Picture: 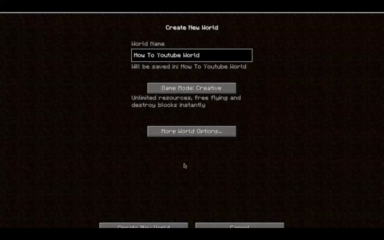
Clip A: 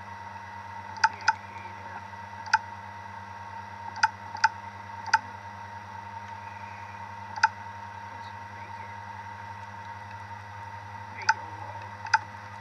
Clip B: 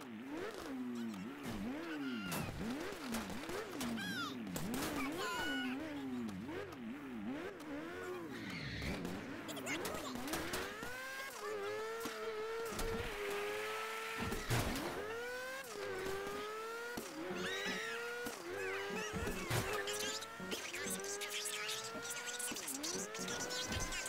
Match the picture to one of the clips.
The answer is A